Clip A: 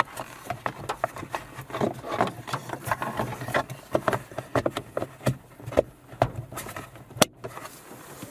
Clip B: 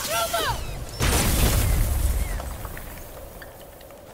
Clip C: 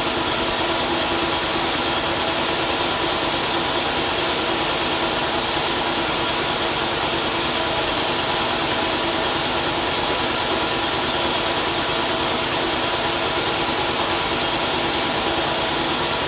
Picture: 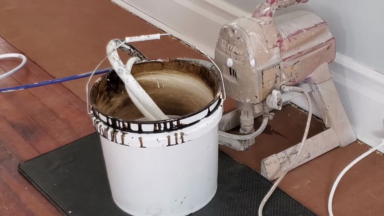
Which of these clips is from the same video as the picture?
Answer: C